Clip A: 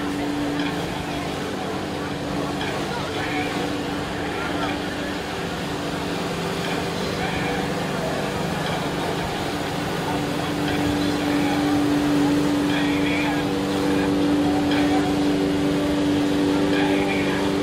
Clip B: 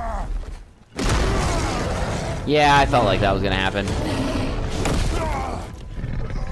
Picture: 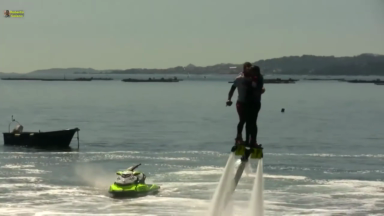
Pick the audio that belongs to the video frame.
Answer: A